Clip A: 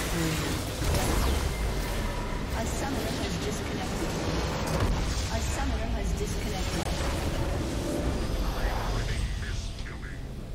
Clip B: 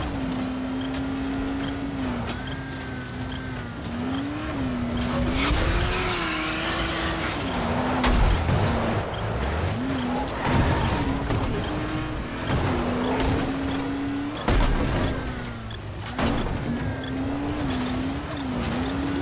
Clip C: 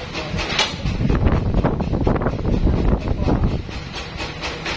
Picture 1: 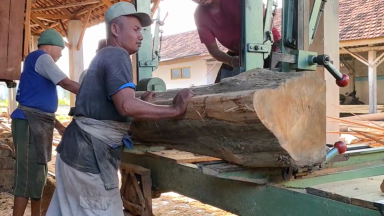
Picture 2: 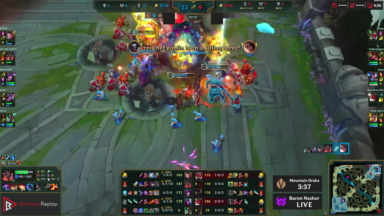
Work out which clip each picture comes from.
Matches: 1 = C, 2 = A